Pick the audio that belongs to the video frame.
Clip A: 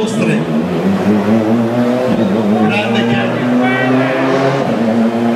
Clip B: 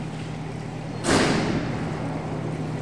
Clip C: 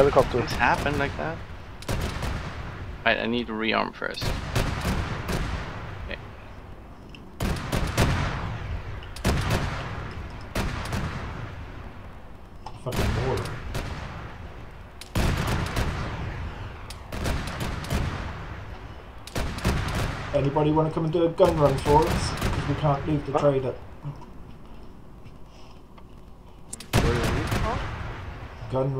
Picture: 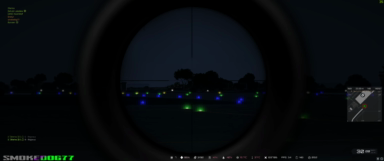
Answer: C